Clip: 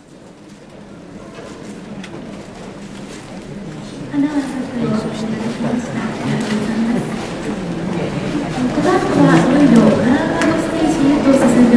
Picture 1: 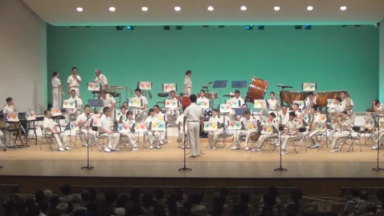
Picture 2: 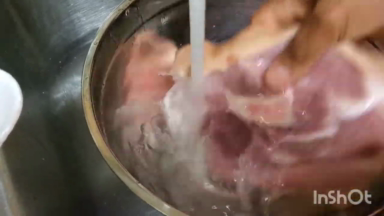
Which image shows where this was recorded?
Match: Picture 1